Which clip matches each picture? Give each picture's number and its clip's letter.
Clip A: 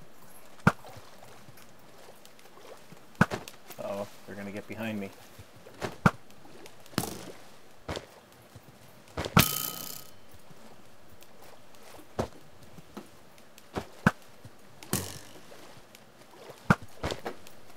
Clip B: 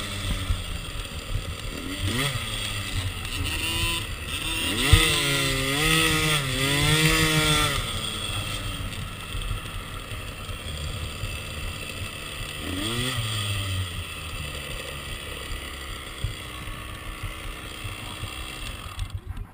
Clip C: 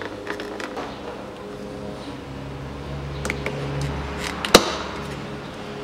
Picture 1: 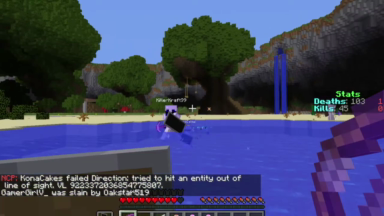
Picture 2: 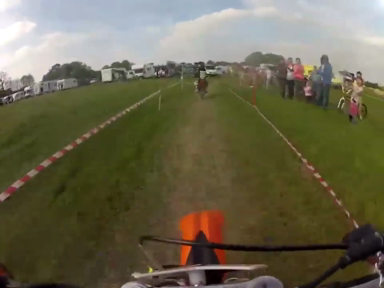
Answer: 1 A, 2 B